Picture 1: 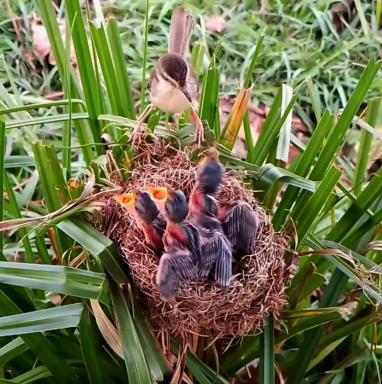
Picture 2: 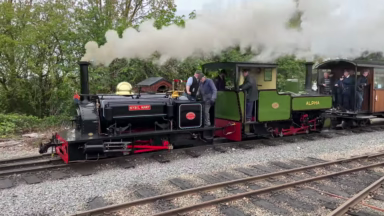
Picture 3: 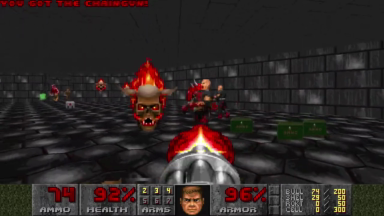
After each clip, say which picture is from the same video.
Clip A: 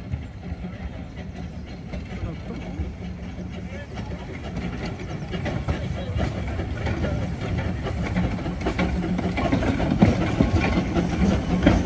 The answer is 2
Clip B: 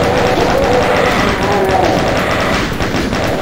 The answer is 3